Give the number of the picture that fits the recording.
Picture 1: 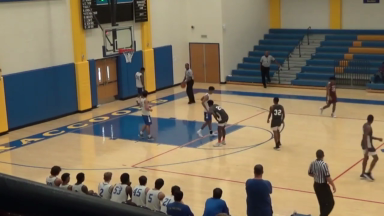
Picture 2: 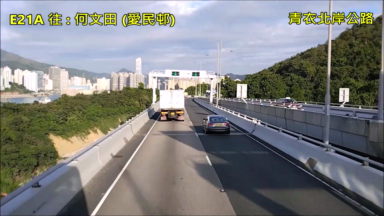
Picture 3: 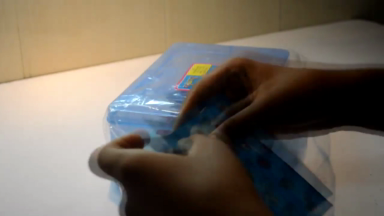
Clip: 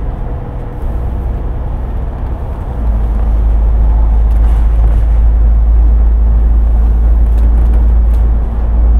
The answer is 2